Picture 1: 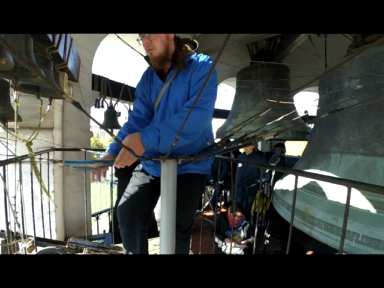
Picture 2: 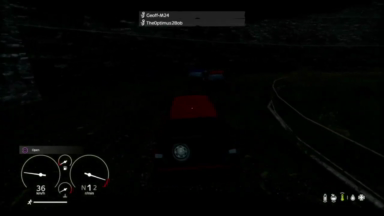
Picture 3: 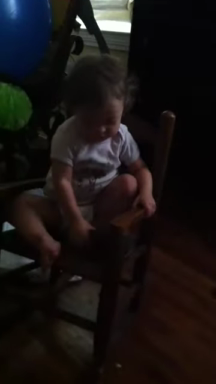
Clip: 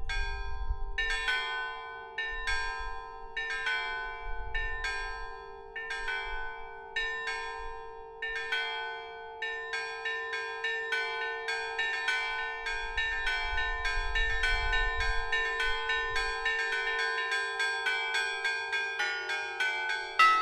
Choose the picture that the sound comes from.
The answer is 1